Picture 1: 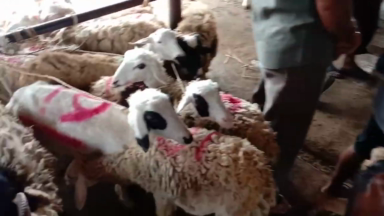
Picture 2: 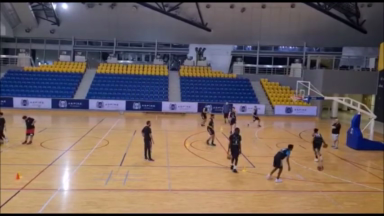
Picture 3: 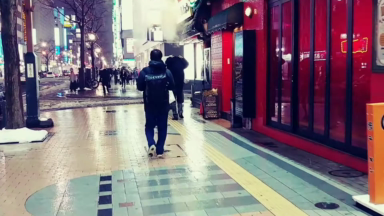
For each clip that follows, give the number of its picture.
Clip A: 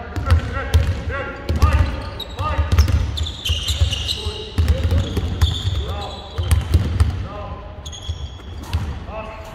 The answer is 2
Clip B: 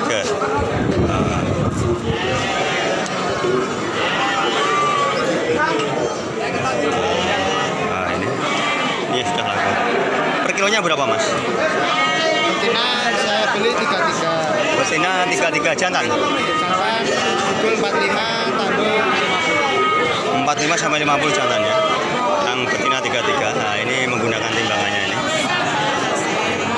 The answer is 1